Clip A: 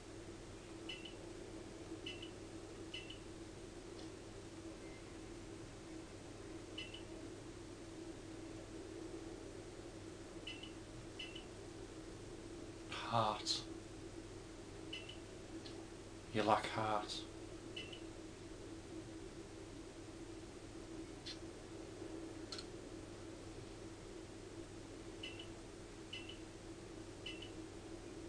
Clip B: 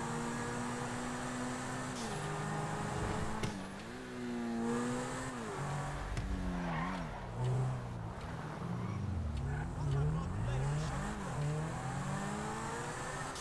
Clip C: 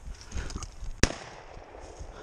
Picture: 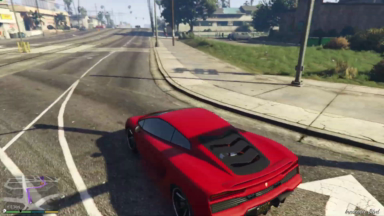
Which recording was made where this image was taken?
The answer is B